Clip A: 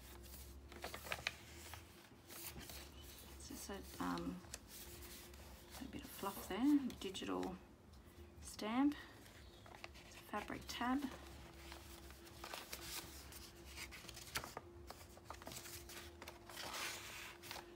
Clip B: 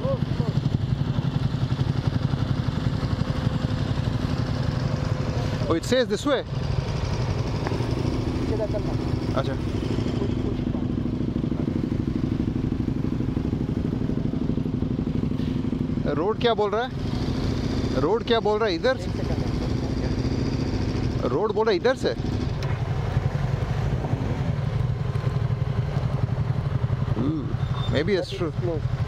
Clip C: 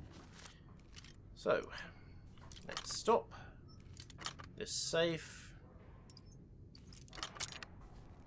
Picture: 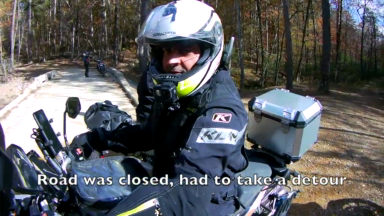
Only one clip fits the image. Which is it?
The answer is B